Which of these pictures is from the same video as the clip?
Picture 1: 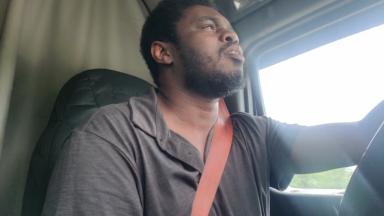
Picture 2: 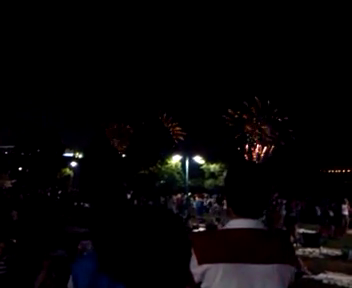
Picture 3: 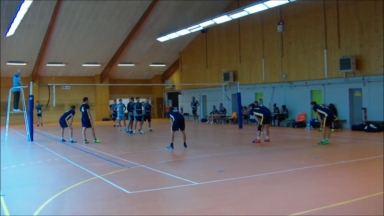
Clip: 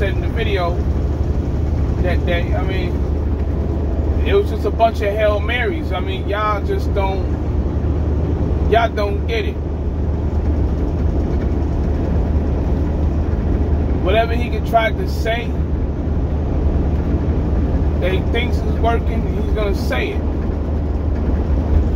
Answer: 1